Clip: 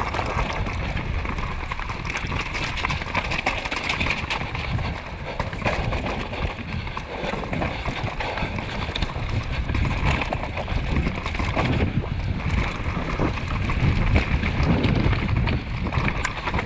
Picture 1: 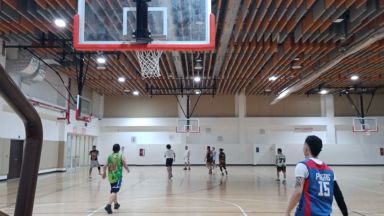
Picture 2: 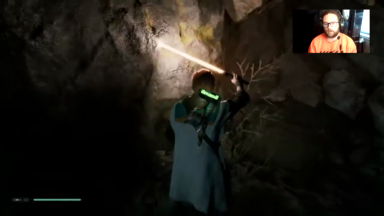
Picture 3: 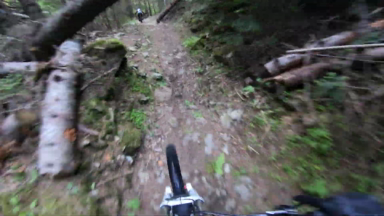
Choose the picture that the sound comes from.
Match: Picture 3